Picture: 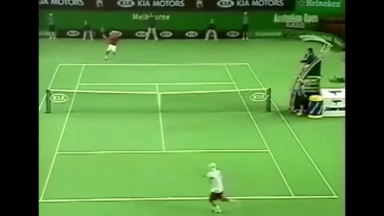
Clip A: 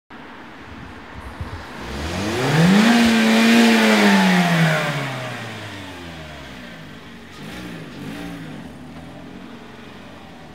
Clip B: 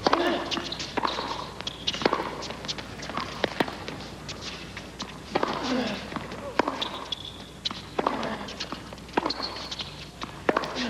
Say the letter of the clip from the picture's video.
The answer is B